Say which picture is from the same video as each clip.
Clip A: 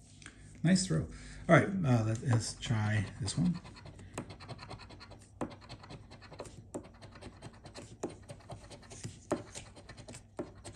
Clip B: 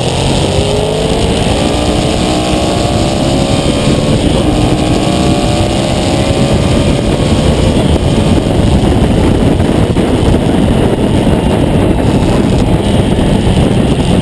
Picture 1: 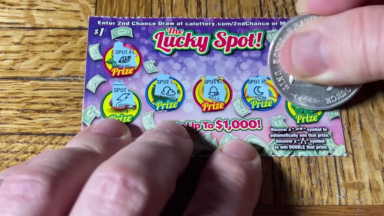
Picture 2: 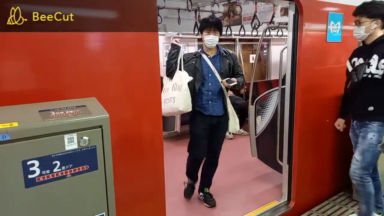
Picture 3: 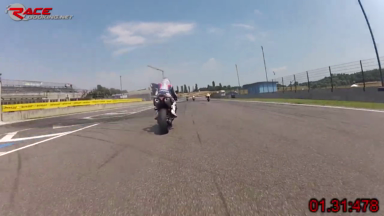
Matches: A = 1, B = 3